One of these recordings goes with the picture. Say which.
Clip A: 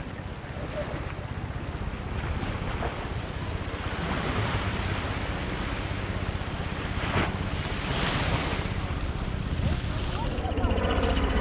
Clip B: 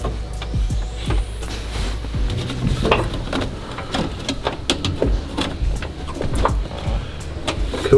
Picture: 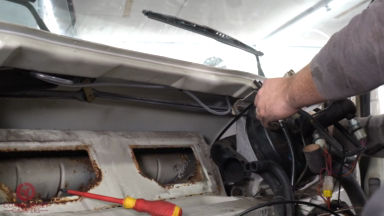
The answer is B